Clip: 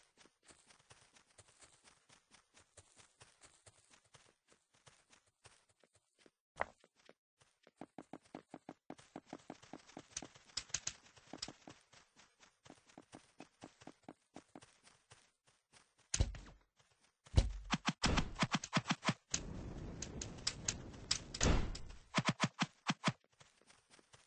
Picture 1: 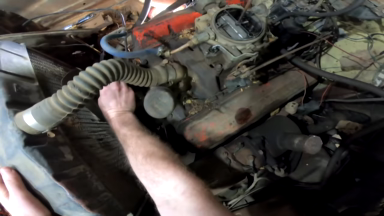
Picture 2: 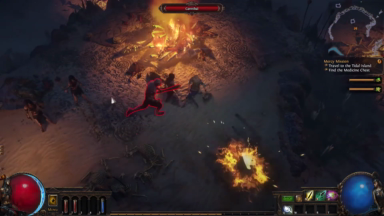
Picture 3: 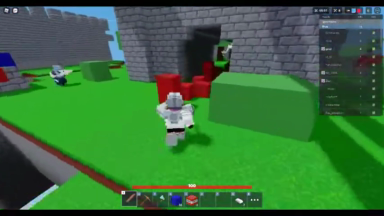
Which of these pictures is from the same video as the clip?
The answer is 3